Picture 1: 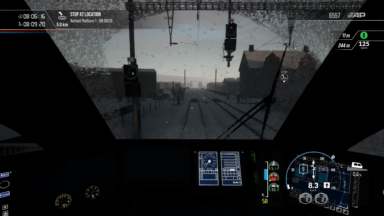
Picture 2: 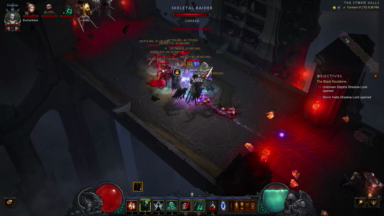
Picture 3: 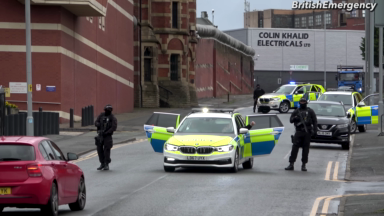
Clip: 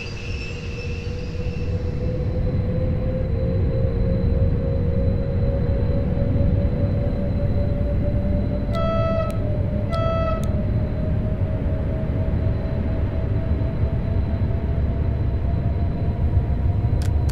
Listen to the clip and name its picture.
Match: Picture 1